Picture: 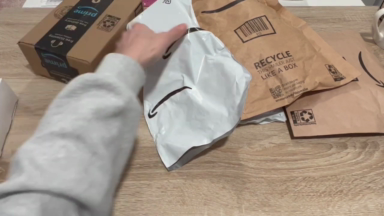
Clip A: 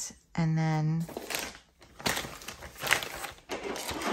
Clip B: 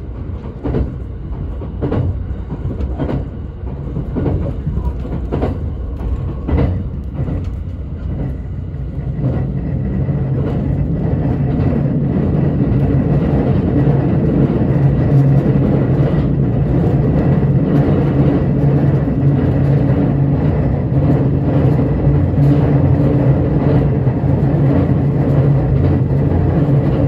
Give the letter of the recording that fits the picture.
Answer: A